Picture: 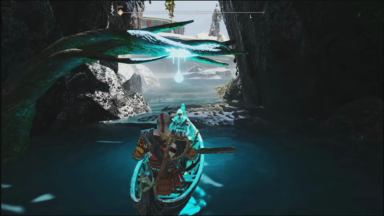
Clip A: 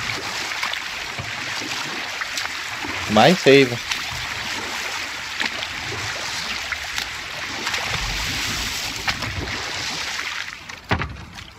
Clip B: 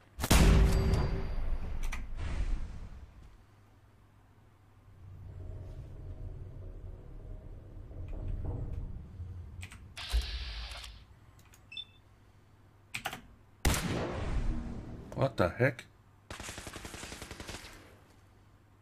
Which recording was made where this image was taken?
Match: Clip A